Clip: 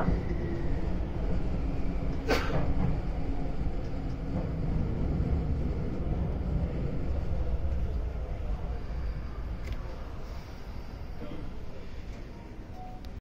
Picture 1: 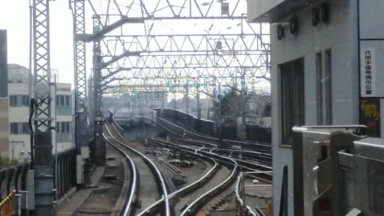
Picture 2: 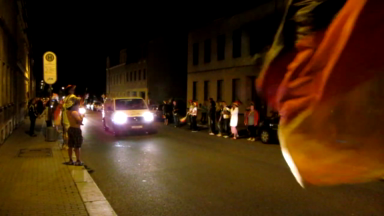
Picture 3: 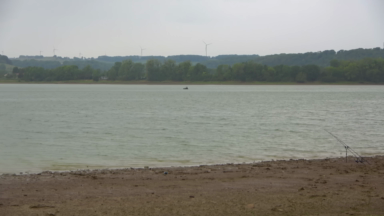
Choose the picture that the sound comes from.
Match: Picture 1